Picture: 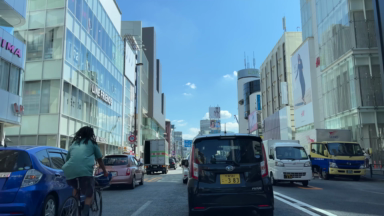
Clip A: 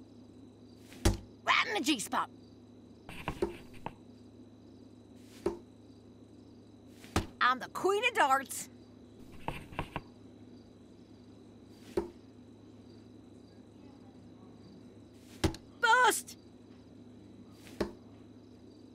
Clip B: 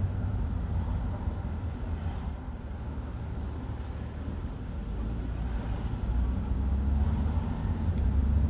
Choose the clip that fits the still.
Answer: B